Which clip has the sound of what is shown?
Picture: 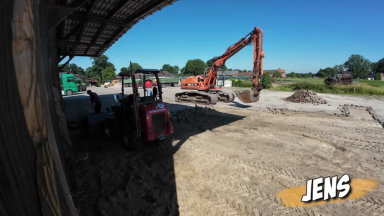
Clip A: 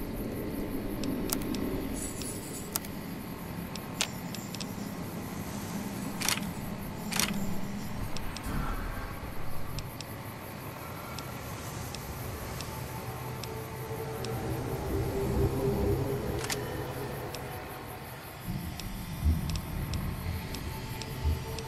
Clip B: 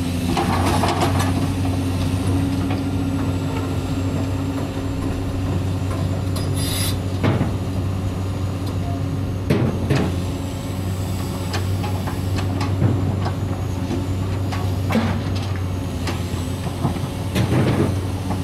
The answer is B